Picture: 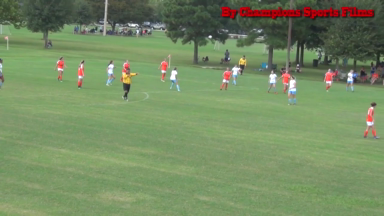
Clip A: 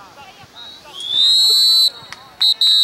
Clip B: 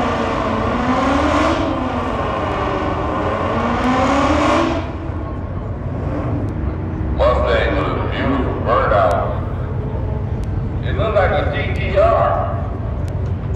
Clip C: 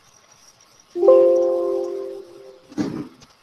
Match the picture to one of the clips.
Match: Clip A